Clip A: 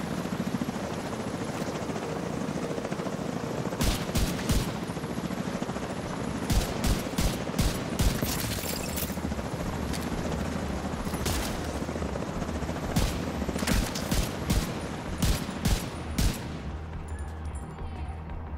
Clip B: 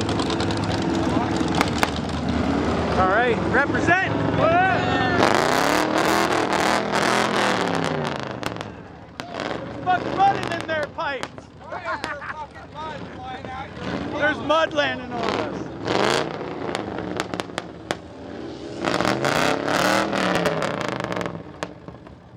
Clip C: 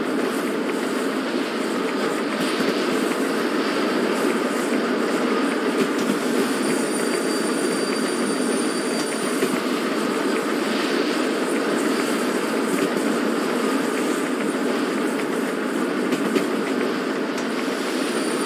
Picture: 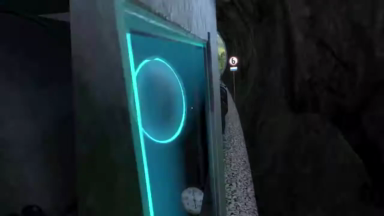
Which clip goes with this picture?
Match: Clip C